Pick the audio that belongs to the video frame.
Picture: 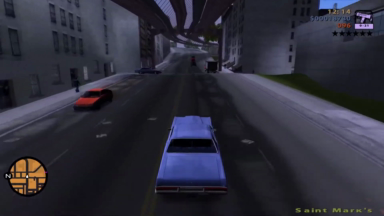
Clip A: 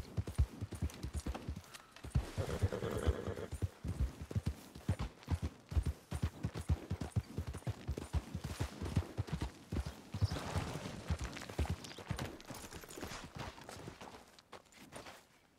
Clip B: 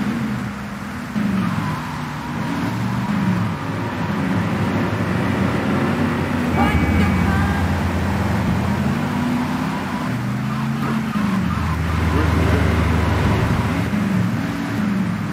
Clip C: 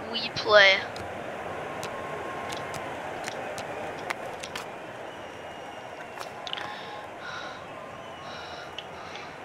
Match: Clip B